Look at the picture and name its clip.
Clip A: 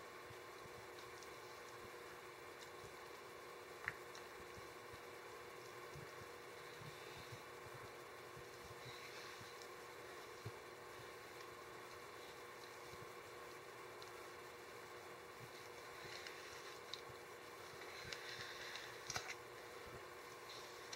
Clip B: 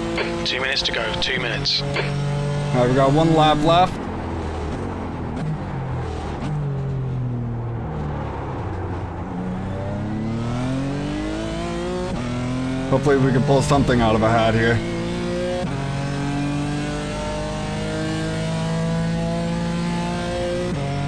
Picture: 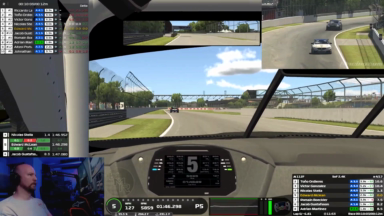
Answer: B